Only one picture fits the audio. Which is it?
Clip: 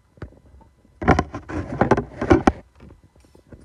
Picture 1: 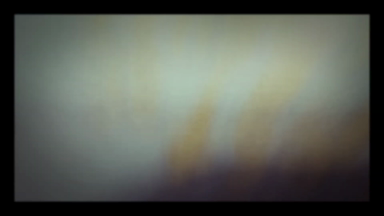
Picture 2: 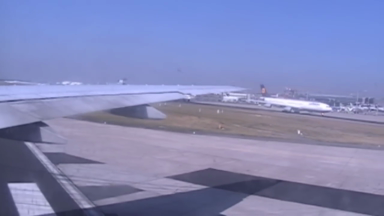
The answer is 1